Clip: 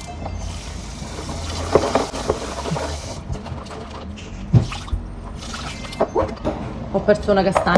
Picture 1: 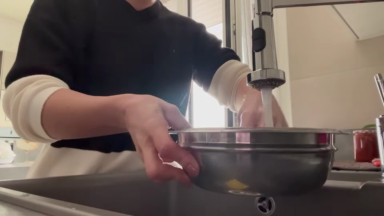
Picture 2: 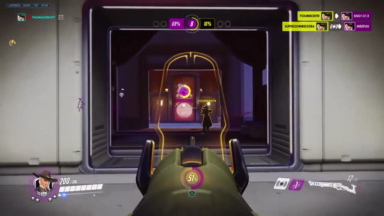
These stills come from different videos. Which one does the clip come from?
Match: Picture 1